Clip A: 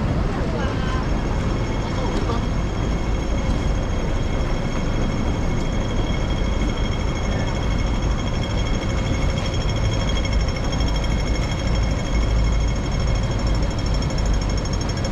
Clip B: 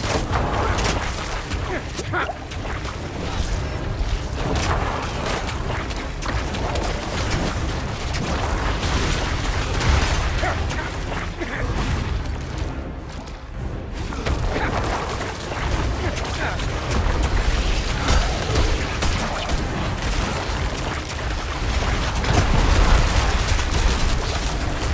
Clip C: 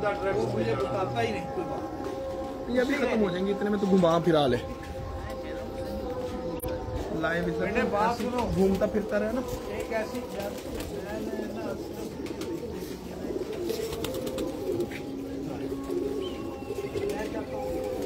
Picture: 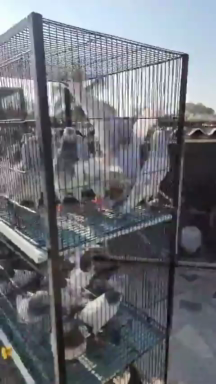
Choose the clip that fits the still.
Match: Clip C